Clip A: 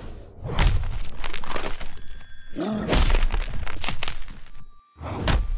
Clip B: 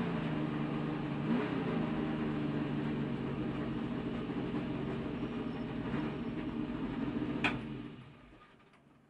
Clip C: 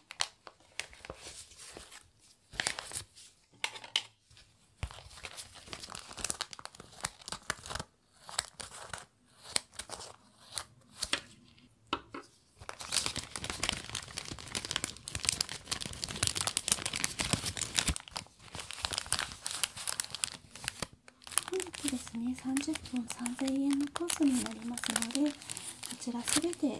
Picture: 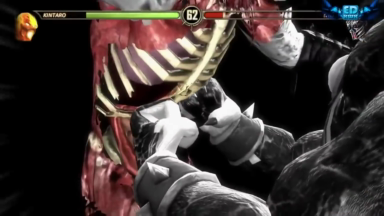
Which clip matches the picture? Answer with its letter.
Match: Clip A